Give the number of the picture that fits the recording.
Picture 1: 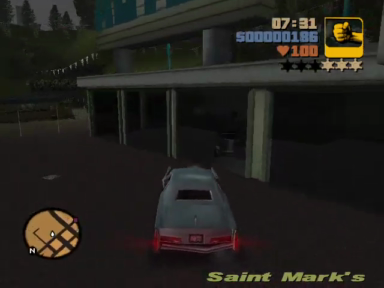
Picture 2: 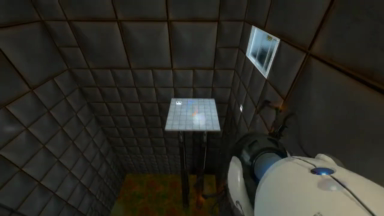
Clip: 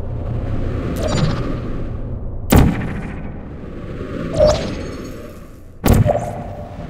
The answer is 2